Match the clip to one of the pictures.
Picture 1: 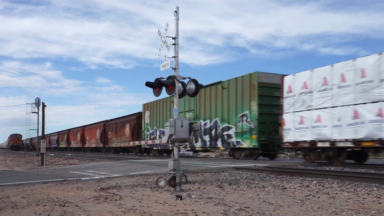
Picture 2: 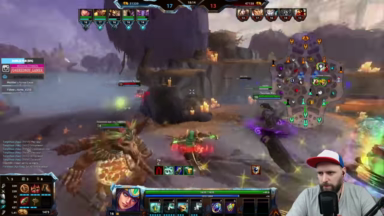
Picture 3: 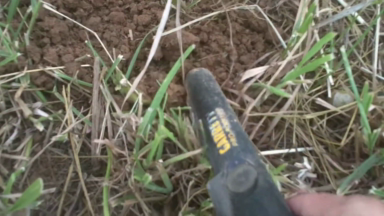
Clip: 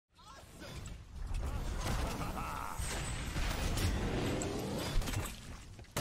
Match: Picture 2